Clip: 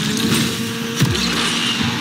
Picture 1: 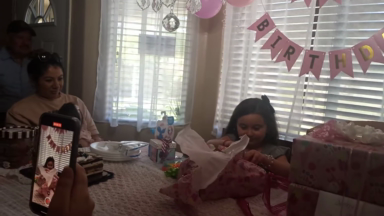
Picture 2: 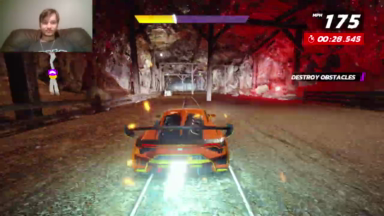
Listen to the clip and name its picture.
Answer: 2